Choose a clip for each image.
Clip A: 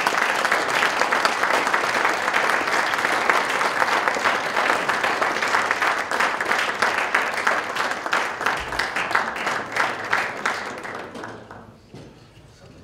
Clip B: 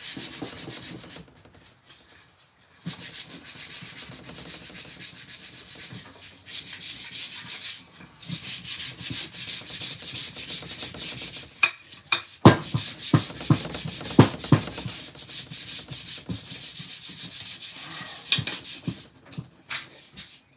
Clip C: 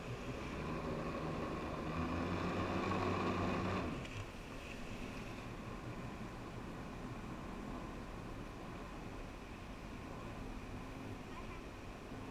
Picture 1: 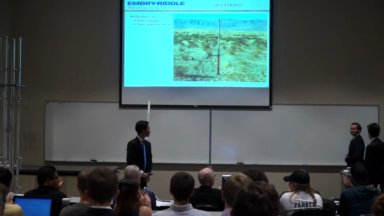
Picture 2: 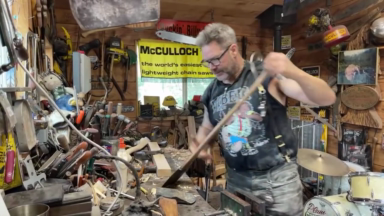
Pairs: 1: A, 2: B